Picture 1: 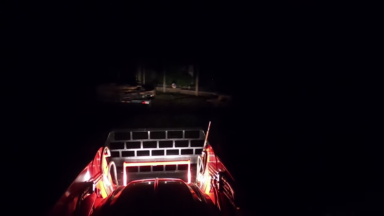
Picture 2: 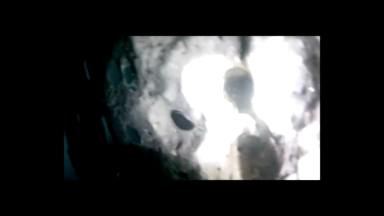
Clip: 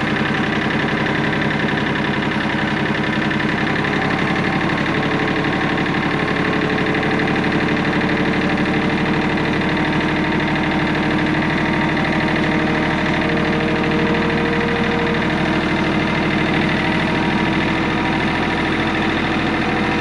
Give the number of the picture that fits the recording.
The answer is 1